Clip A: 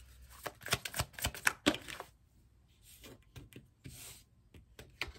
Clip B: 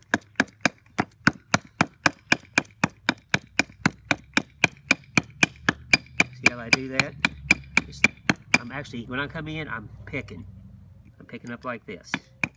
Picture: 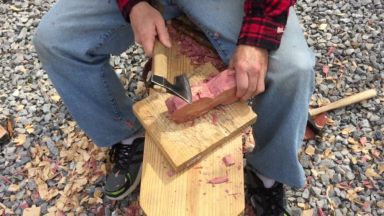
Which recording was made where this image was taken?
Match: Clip B